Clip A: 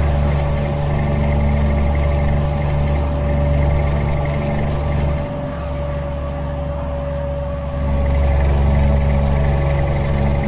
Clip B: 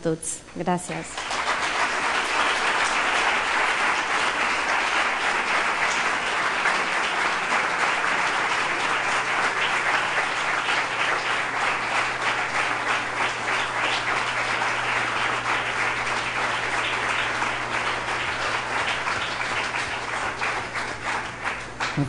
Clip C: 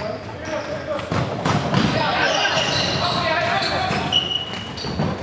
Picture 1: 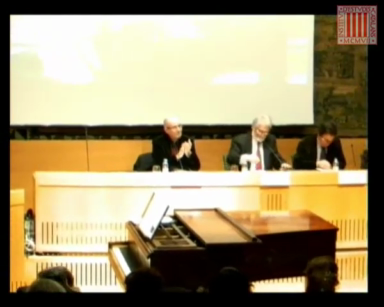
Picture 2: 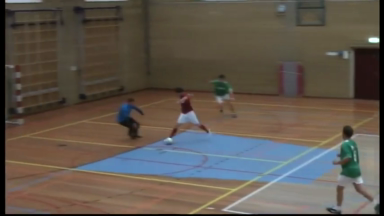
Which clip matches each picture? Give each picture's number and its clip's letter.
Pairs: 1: B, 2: C